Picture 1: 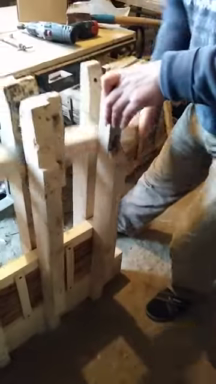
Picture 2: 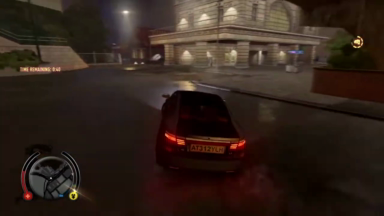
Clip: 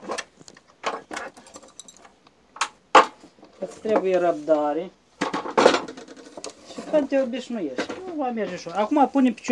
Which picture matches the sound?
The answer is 1